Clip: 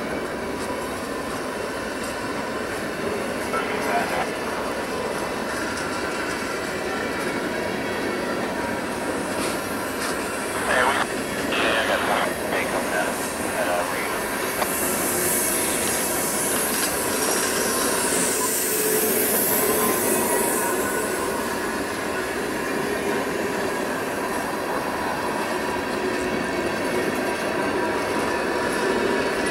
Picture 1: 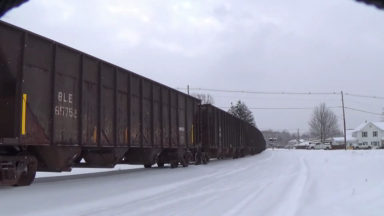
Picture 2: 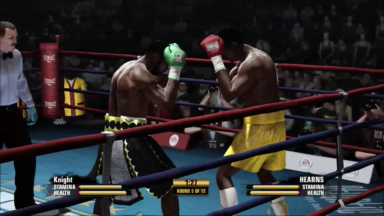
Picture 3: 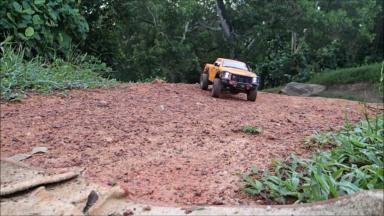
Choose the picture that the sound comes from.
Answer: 1